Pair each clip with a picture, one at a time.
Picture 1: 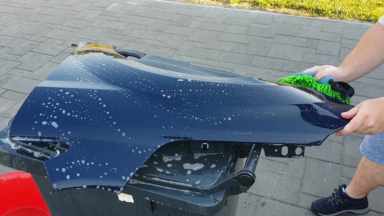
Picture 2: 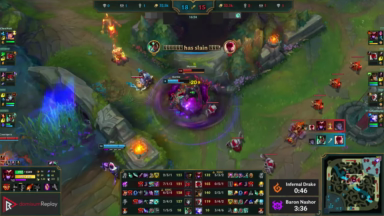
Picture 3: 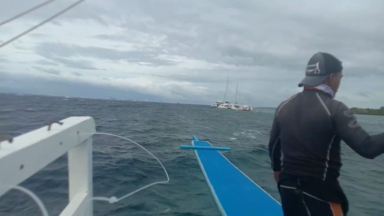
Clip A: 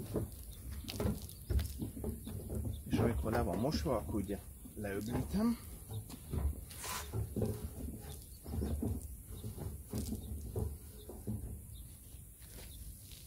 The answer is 1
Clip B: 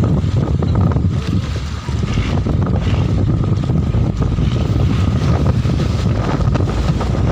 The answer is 3